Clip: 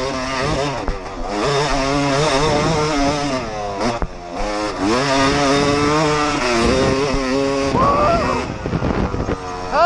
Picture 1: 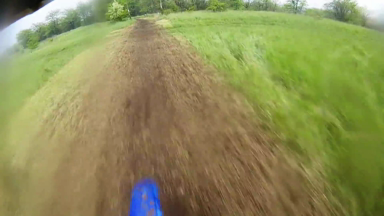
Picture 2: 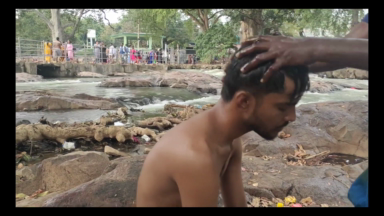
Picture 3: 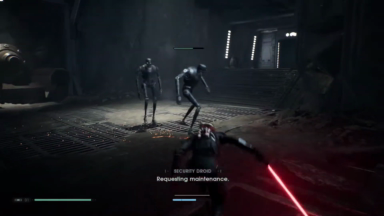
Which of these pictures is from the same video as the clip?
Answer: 1